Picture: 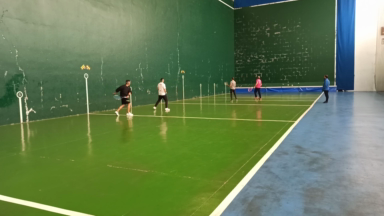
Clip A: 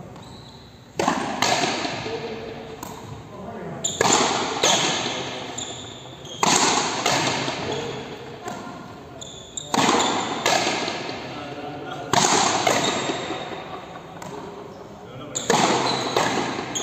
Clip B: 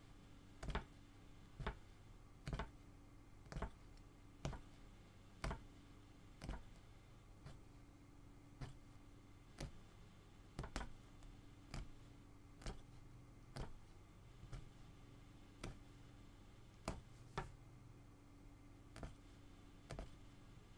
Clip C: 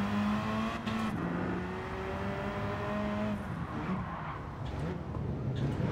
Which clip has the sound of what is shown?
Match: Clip A